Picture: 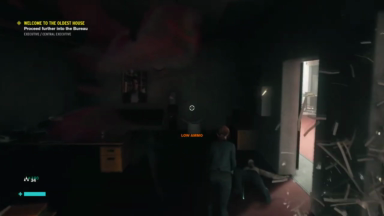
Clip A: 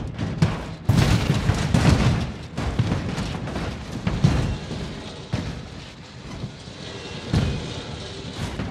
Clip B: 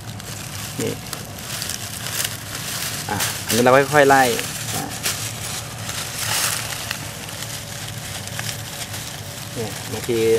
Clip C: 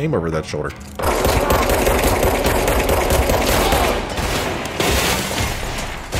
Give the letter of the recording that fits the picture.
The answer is C